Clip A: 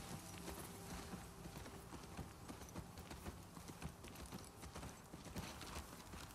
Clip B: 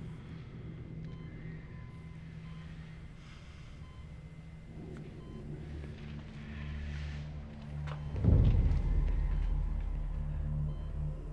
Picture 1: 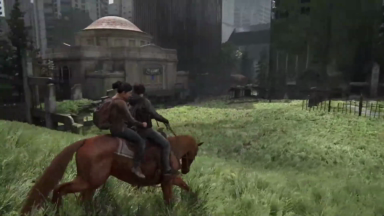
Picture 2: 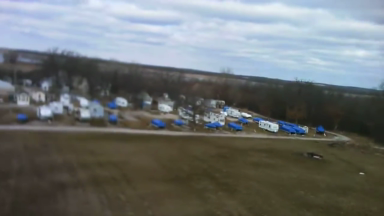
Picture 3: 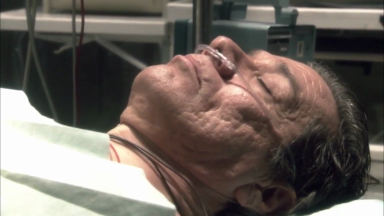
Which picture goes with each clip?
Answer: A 1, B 3